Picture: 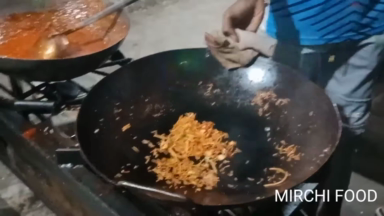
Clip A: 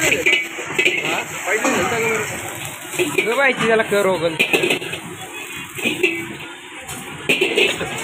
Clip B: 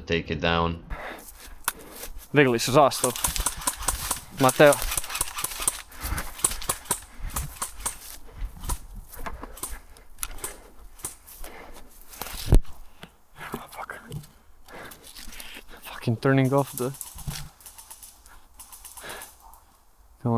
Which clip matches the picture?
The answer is A